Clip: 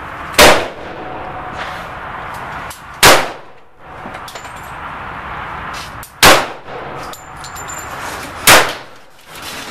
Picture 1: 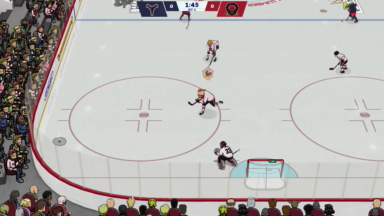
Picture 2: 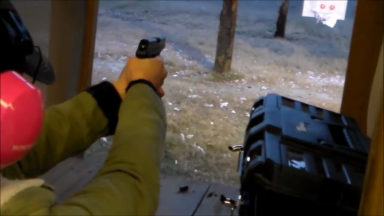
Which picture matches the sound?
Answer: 2